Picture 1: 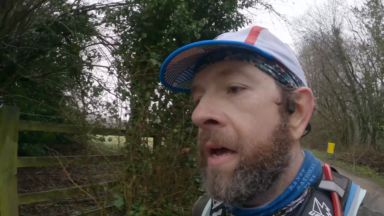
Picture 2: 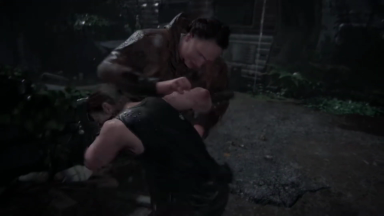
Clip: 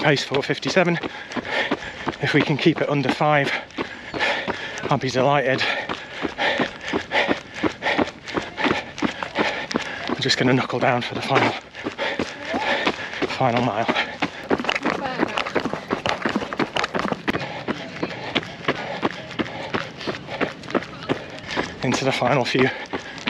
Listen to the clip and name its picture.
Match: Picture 1